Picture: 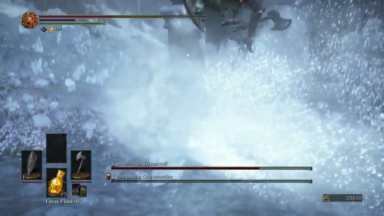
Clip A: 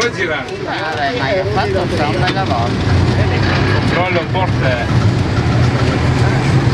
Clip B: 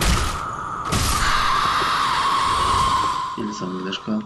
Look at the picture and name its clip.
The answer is B